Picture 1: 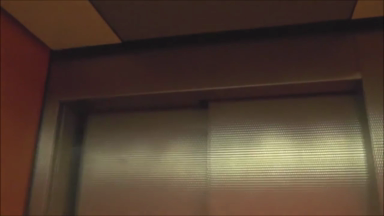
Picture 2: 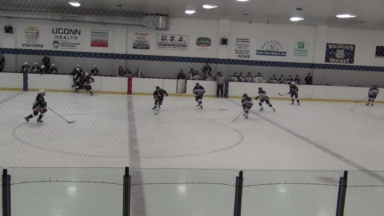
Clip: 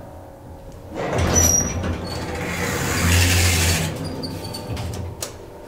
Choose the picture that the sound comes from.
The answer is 1